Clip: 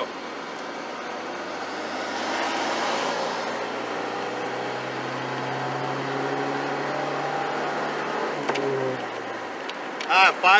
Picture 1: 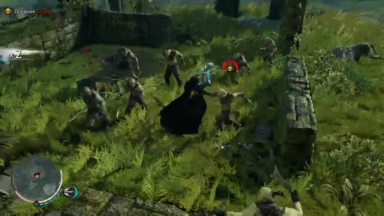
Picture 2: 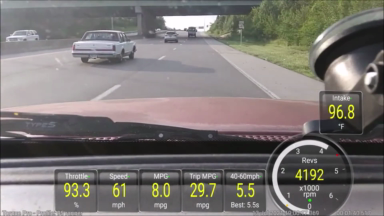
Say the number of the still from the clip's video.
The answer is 2